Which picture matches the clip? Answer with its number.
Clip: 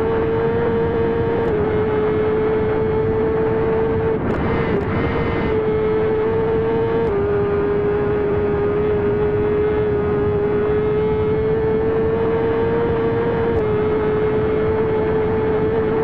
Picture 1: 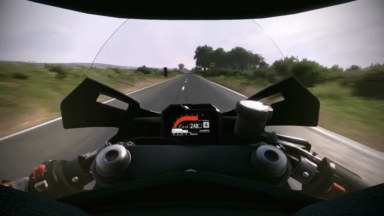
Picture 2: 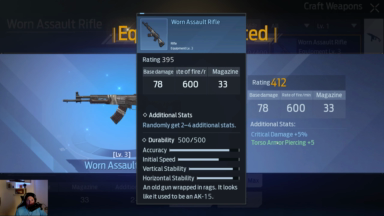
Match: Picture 1